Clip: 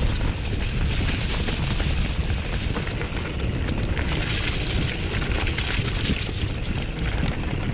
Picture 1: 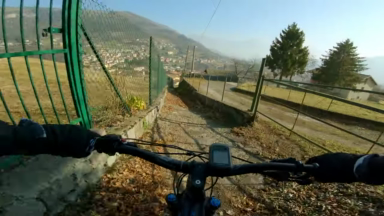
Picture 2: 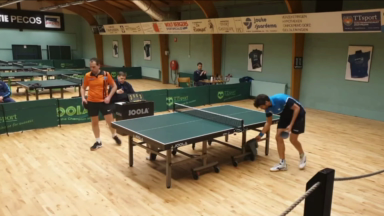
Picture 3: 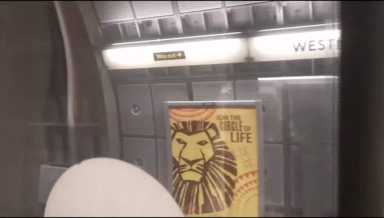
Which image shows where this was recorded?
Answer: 1